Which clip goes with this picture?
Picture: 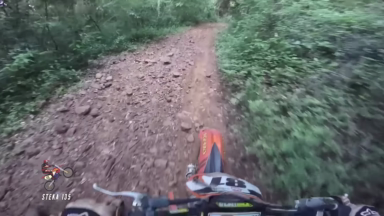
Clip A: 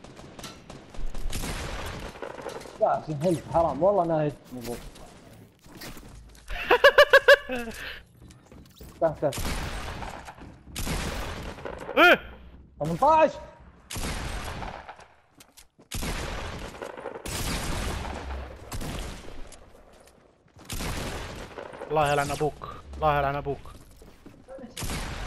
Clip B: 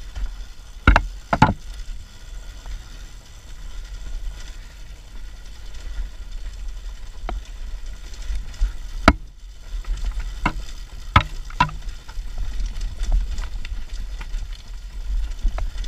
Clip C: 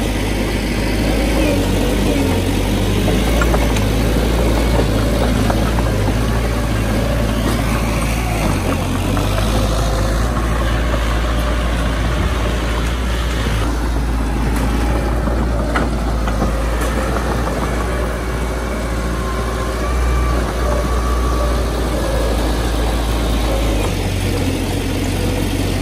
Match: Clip B